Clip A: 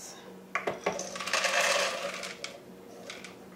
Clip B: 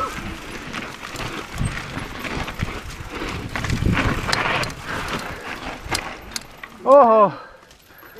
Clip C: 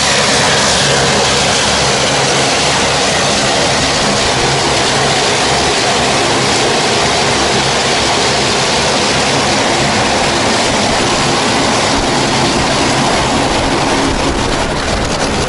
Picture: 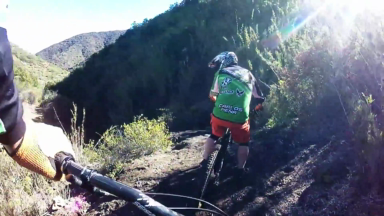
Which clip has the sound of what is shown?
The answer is B